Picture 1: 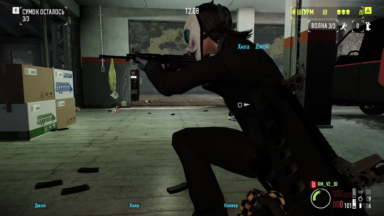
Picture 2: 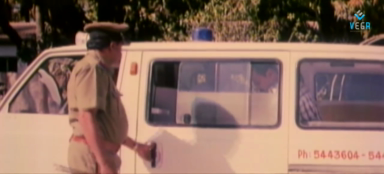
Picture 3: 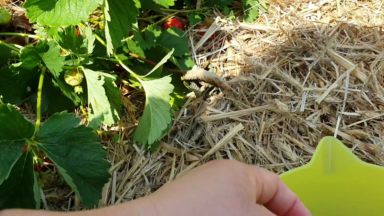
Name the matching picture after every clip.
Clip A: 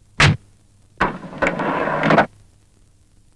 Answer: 2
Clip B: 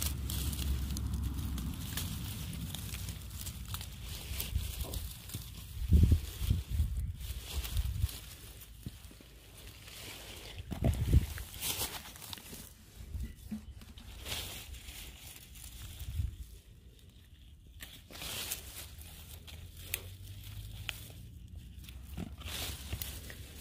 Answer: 3